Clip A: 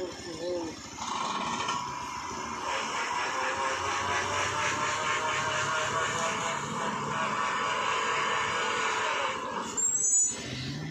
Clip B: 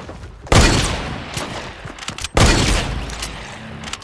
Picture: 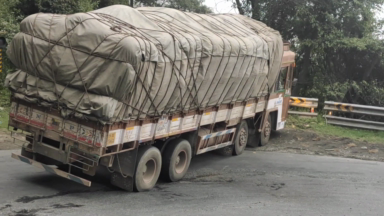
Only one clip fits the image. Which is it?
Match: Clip A